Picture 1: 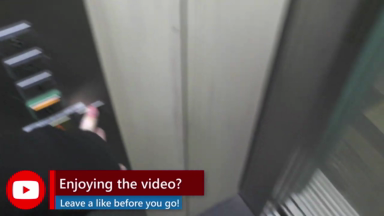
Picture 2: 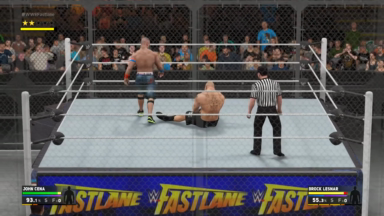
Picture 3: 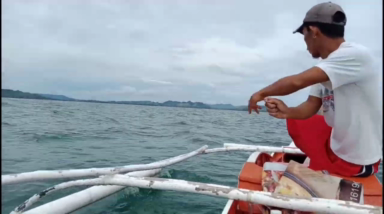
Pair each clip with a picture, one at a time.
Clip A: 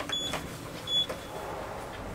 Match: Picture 1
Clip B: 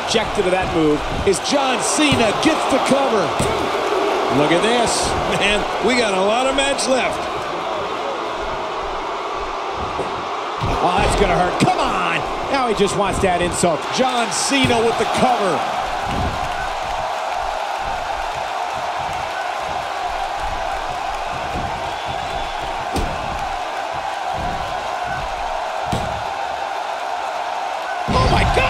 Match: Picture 2